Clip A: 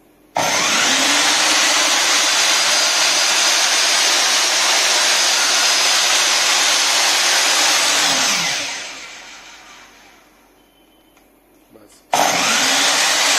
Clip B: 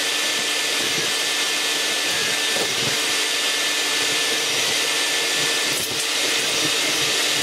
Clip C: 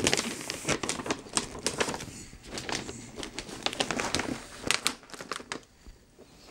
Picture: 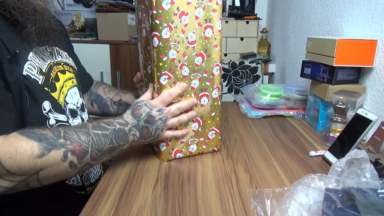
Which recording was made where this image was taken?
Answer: C